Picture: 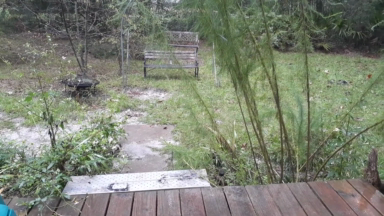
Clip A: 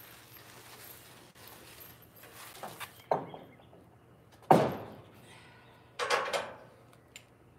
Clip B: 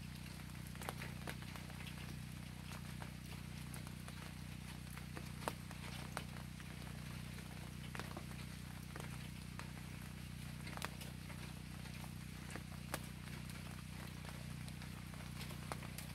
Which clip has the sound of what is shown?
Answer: B